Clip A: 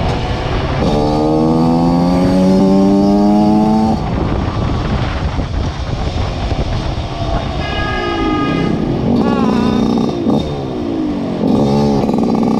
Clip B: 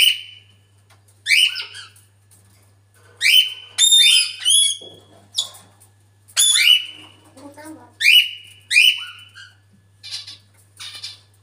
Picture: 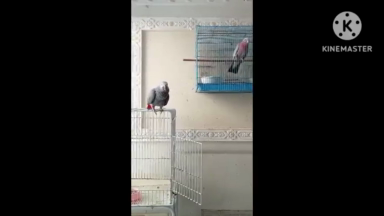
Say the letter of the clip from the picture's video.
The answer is B